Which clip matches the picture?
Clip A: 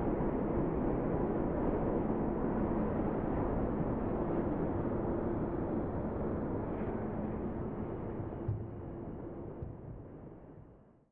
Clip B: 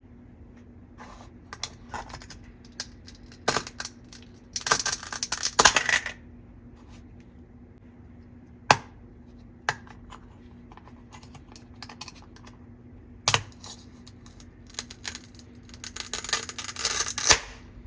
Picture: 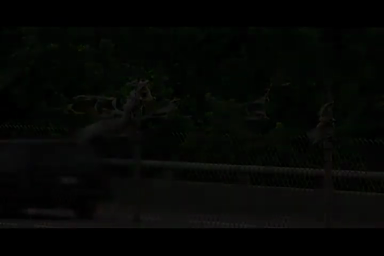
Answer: A